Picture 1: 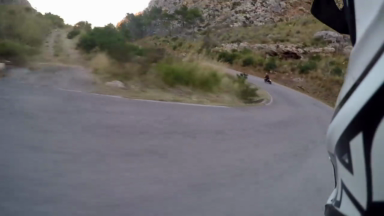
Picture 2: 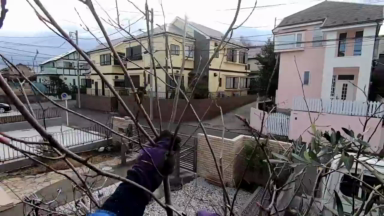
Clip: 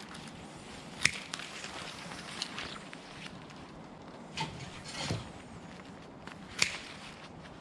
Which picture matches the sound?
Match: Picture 2